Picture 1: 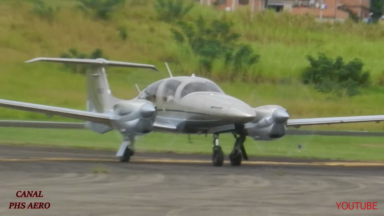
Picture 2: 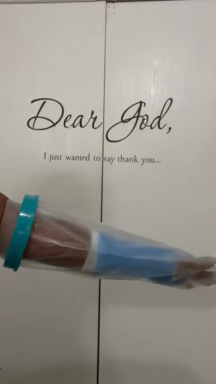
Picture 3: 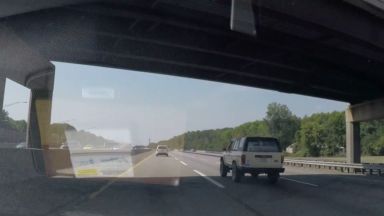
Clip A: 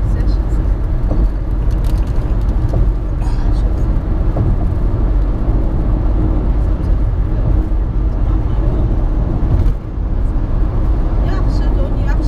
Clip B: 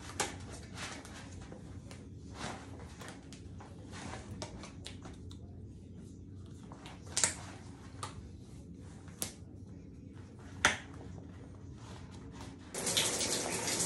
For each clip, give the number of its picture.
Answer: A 3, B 2